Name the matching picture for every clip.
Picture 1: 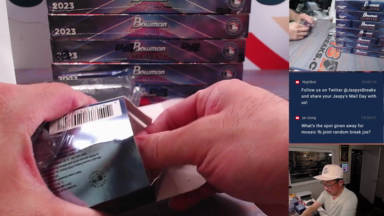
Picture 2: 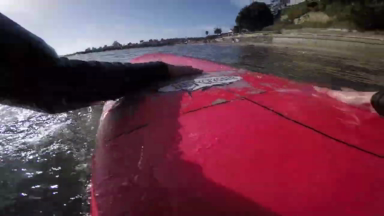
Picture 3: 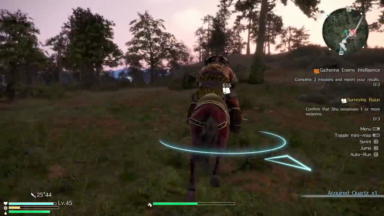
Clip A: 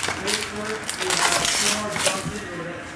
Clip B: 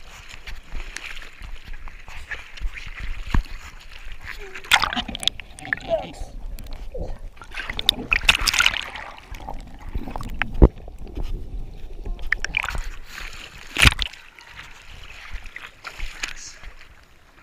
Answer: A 1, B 2